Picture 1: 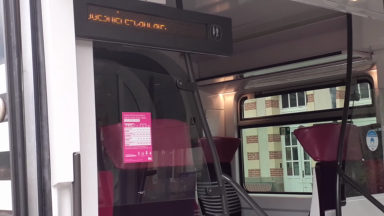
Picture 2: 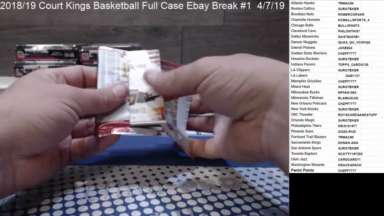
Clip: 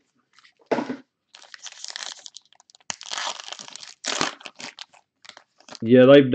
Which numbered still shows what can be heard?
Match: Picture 2